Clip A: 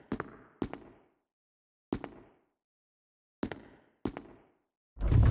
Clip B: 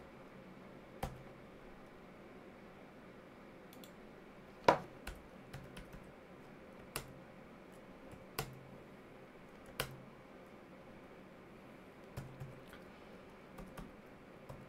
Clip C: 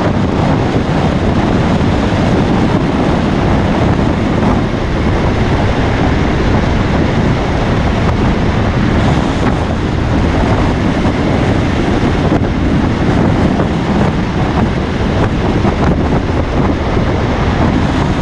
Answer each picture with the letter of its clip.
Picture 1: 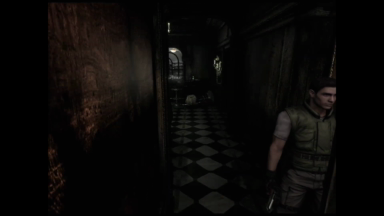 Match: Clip A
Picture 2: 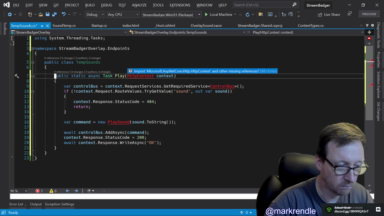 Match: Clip B